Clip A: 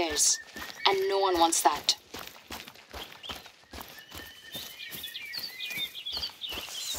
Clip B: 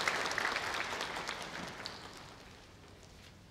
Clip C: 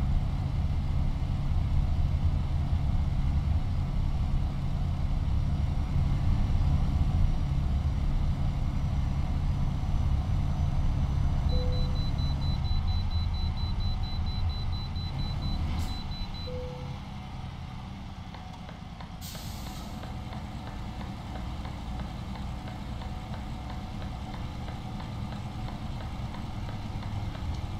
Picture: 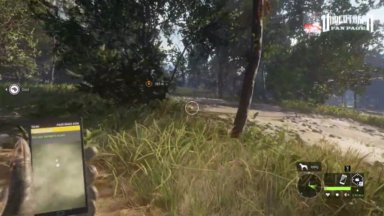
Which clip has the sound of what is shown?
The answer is A